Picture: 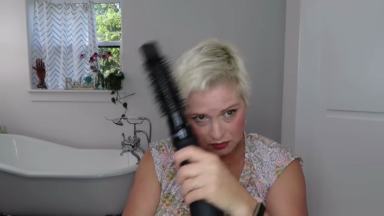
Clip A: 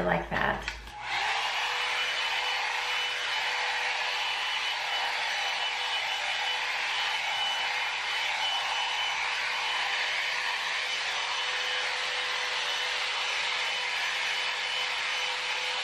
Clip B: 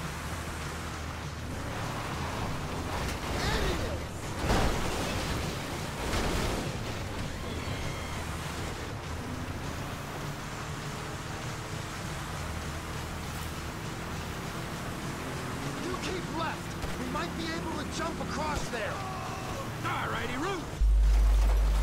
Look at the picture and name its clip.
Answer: A